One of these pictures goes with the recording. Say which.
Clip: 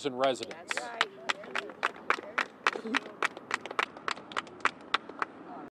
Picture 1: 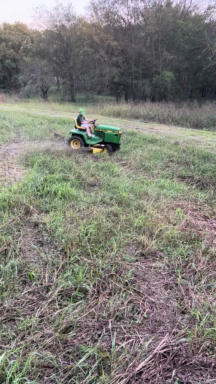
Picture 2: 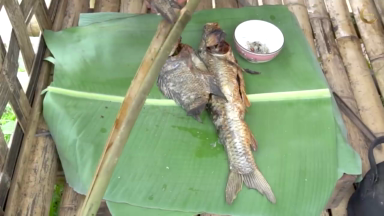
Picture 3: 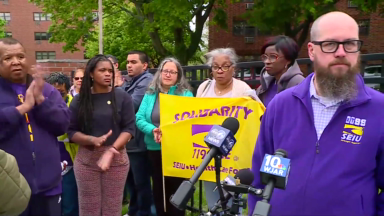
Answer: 3